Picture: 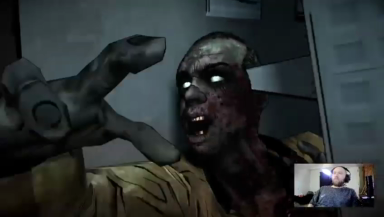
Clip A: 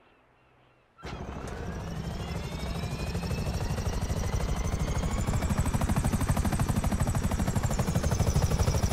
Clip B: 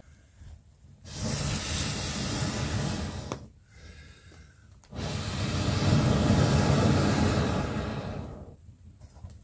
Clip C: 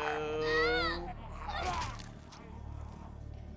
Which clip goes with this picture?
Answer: C